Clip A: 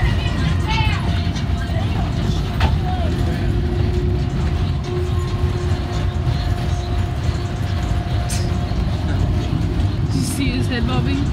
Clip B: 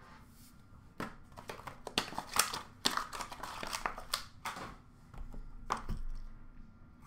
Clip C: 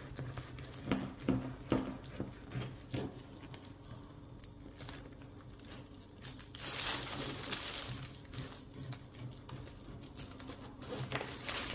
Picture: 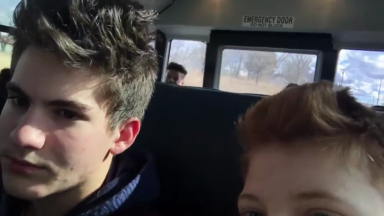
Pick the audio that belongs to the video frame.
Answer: A